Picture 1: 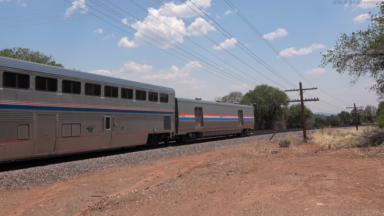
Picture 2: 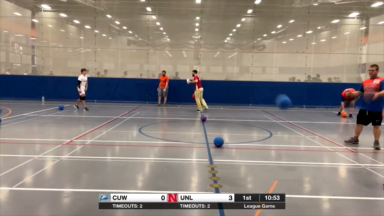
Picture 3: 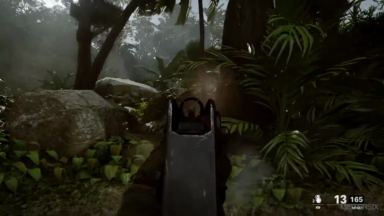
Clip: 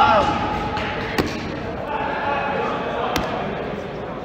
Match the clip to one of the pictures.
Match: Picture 2